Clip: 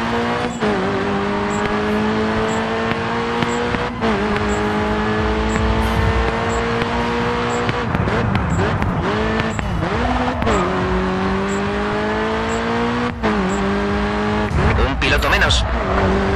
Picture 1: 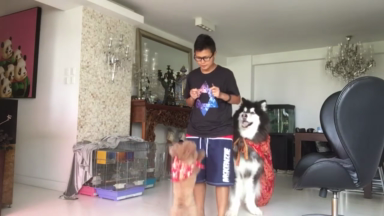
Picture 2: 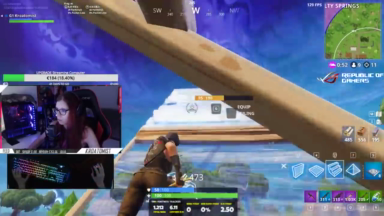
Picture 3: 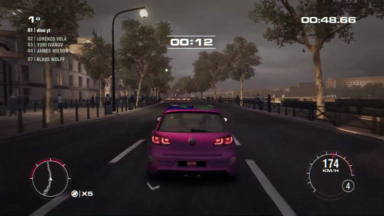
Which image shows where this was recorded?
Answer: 3